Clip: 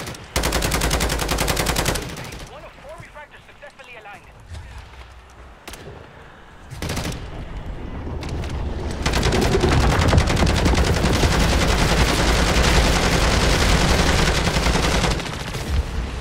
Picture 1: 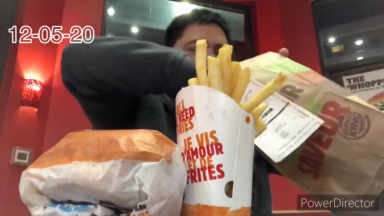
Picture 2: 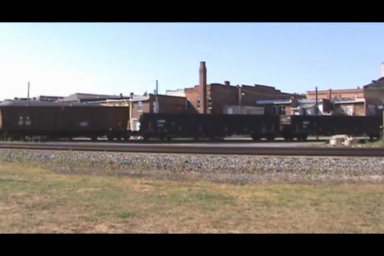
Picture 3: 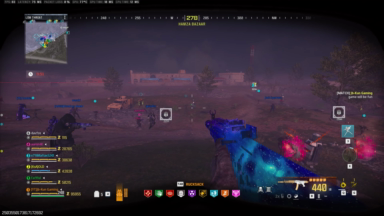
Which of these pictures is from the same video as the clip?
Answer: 3